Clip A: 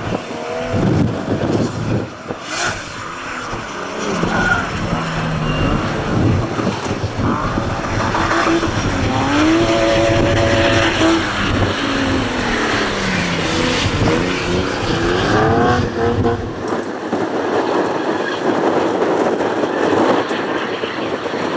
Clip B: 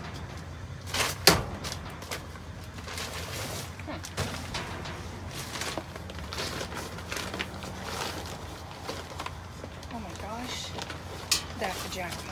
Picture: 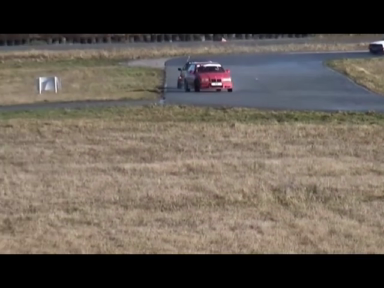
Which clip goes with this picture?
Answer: A